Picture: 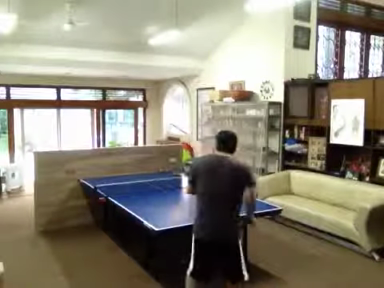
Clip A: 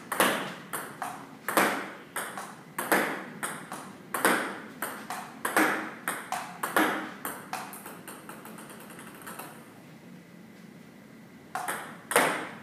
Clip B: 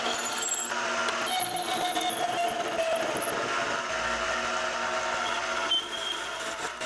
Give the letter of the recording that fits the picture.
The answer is A